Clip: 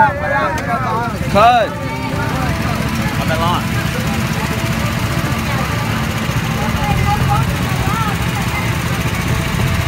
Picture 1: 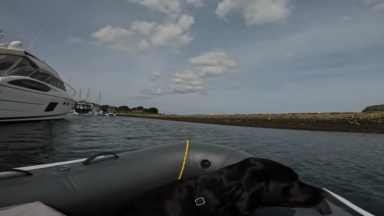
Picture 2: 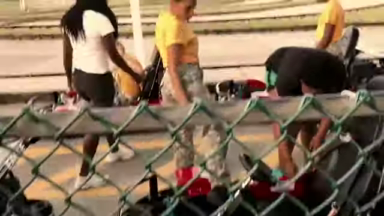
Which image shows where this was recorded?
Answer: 2